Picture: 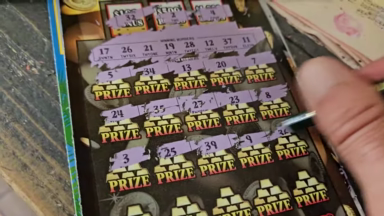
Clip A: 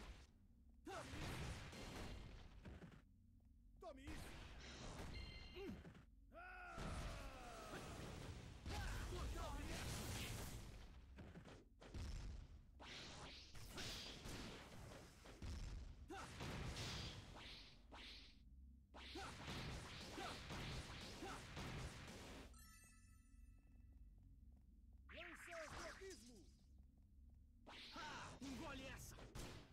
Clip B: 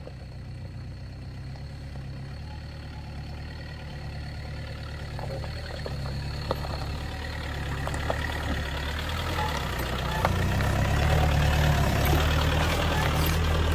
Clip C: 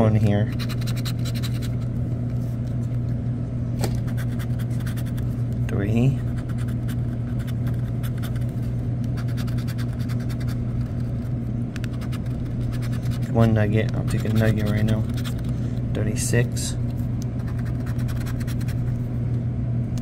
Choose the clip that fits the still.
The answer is C